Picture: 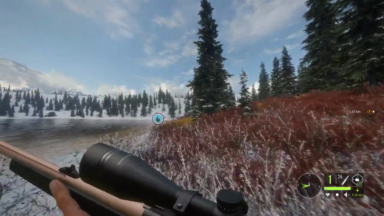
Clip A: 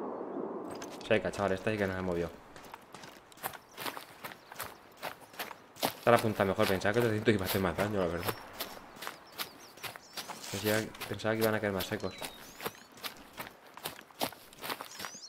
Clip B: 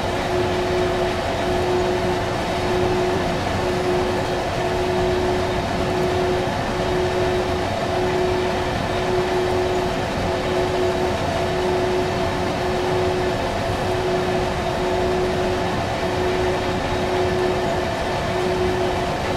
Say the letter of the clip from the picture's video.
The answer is A